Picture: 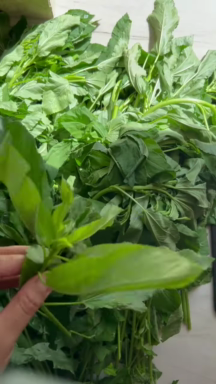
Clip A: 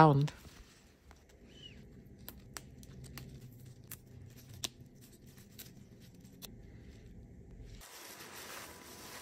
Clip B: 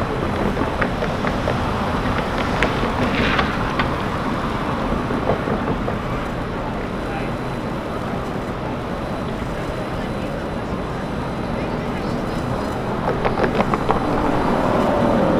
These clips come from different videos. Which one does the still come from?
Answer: A